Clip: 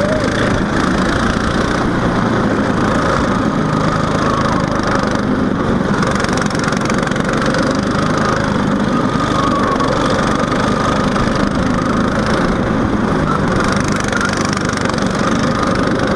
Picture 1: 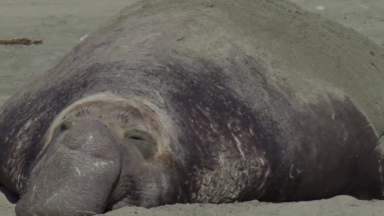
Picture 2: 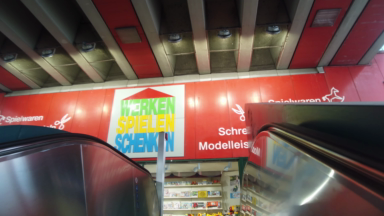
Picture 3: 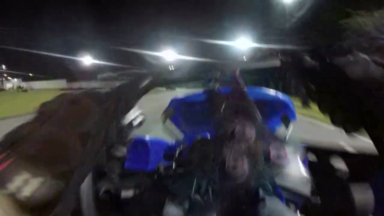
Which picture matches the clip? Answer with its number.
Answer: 3